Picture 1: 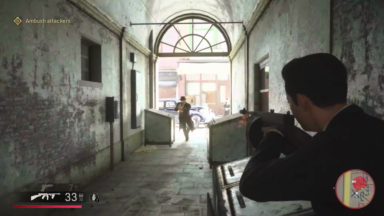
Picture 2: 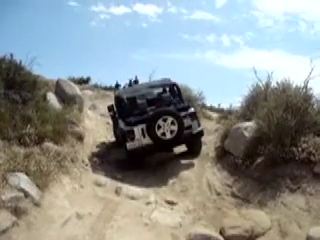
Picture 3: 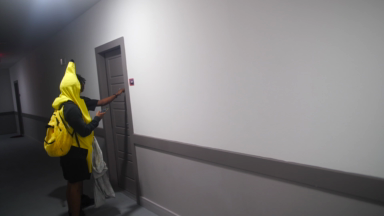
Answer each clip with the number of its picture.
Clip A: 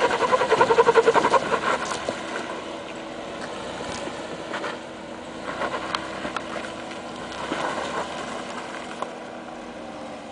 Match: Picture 2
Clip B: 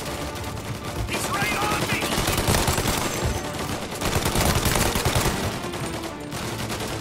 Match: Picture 1